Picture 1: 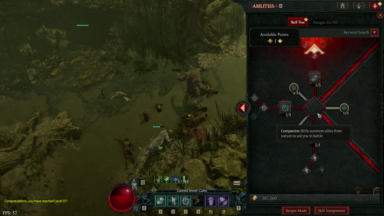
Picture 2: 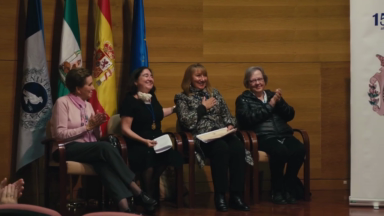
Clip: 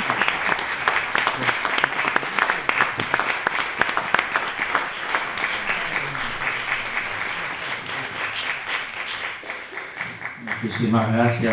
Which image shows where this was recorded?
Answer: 2